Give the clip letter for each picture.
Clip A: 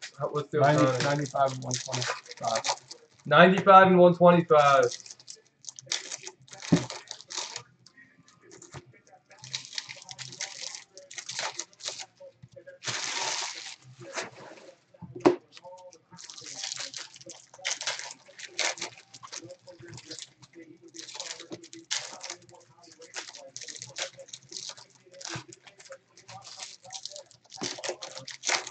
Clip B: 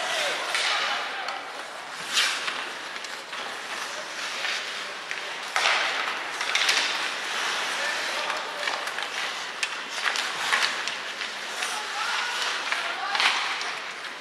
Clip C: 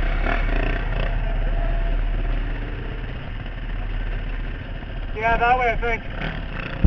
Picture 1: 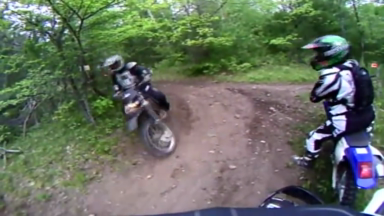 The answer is C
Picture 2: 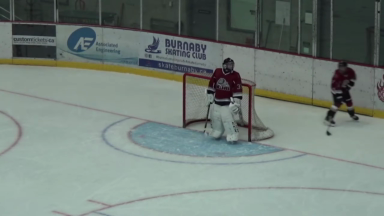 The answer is B